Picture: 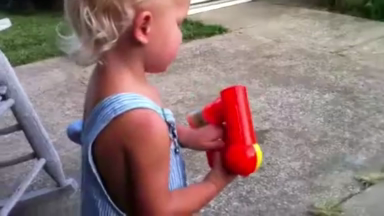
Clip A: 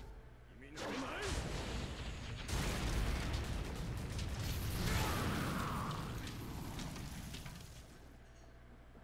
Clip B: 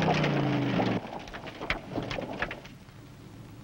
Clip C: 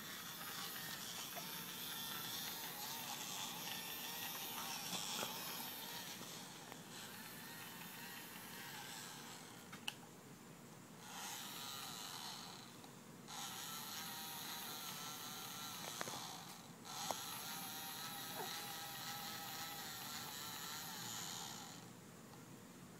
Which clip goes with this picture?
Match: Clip C